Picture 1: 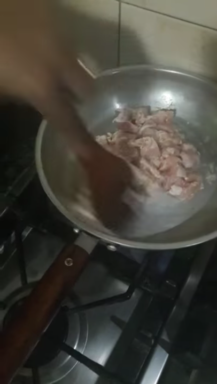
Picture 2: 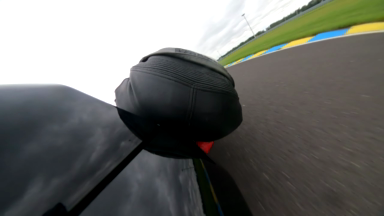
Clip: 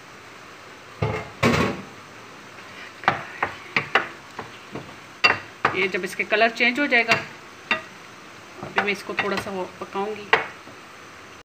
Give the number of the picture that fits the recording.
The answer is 1